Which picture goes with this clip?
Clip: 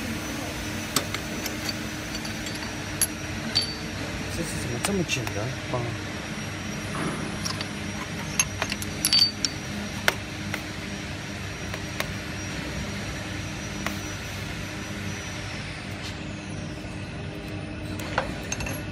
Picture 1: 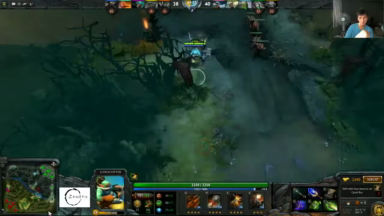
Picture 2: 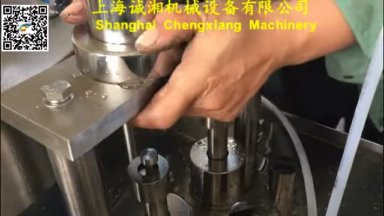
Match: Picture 2